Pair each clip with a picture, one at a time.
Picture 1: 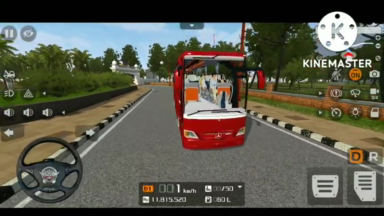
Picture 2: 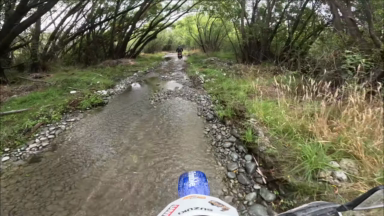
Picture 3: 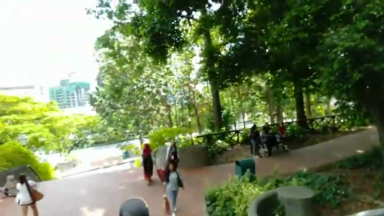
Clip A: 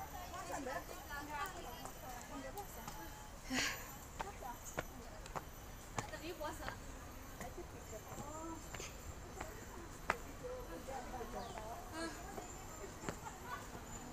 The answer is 3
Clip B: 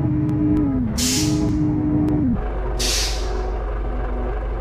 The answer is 1